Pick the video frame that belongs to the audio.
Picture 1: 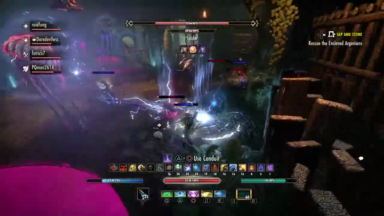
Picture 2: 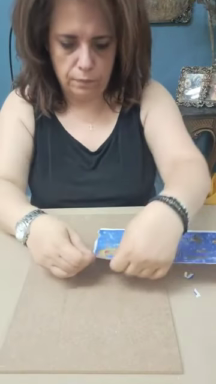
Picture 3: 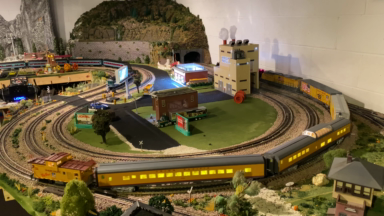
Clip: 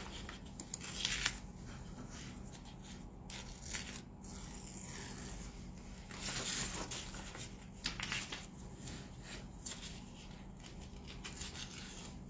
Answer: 2